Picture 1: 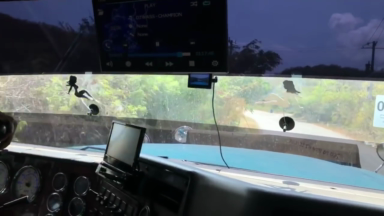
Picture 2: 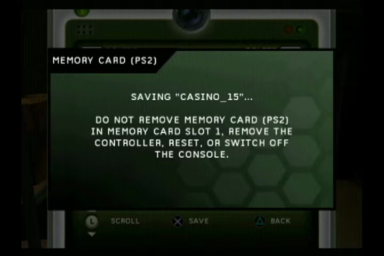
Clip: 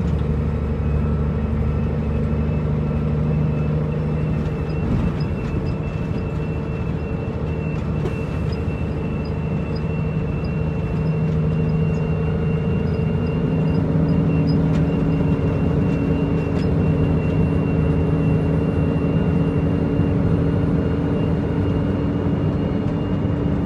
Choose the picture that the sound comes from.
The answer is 1